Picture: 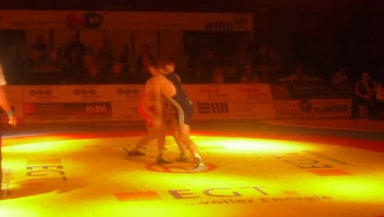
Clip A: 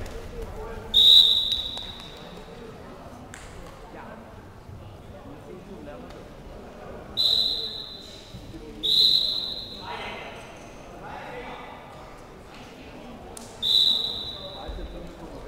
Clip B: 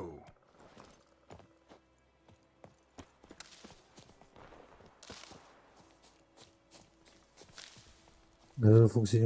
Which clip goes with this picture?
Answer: A